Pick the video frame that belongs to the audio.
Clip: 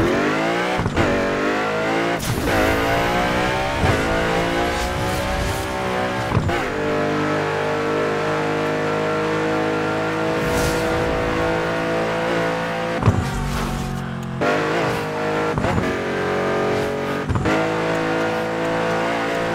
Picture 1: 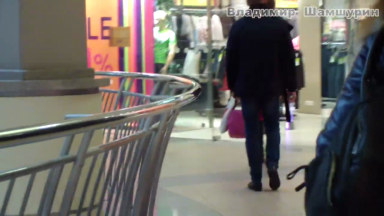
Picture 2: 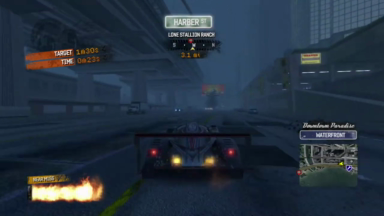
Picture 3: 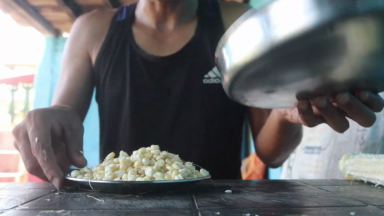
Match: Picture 2